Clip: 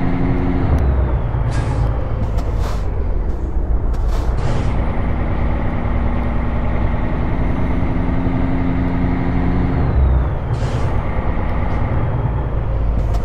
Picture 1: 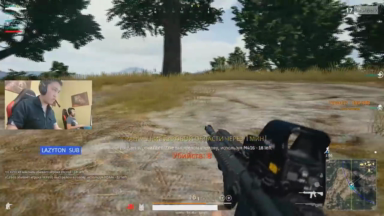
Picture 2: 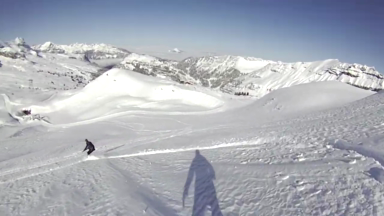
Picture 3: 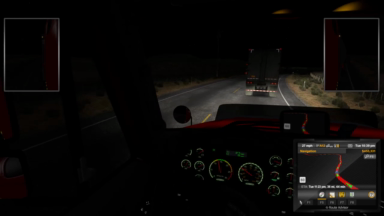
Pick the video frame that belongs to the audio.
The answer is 3